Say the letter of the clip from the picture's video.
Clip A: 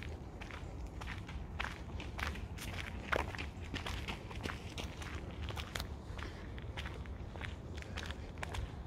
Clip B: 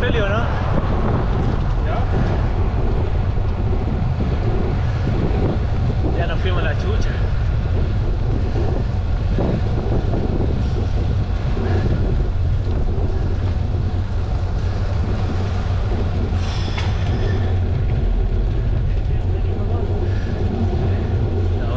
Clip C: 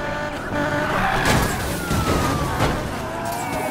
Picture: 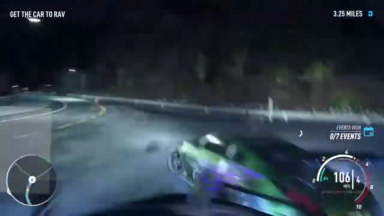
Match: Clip C